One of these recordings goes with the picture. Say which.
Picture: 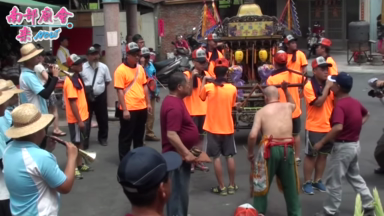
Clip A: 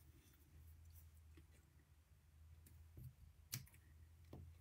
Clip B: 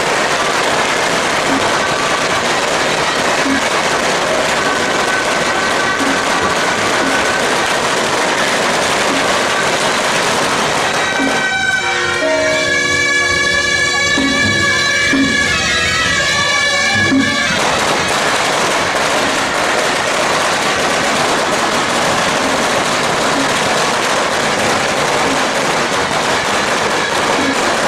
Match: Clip B